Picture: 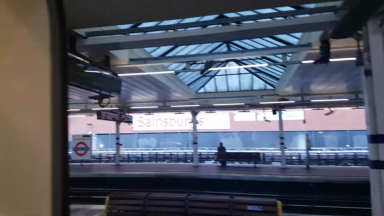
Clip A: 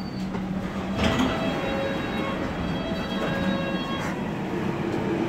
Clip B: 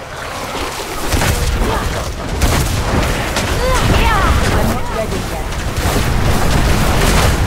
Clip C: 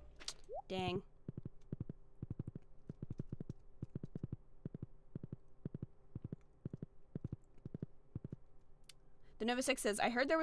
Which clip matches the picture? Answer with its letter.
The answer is A